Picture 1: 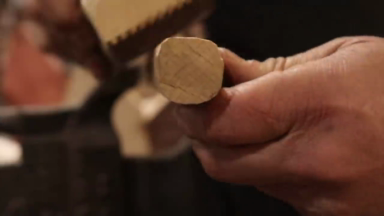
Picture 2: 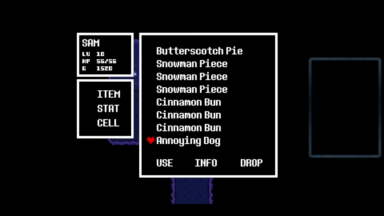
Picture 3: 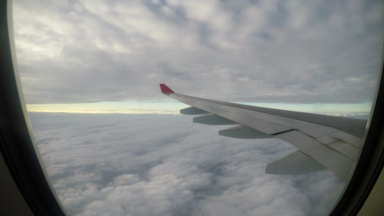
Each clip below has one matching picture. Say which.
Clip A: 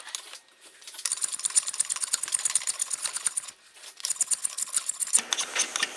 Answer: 1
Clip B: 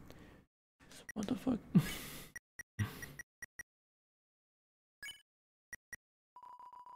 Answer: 2